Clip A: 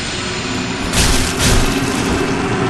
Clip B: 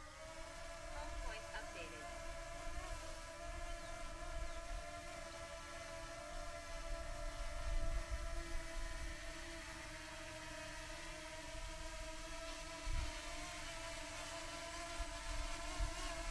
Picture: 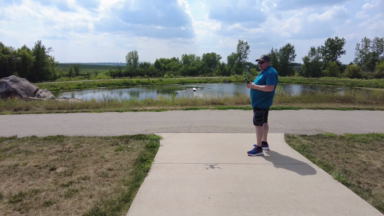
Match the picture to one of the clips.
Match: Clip B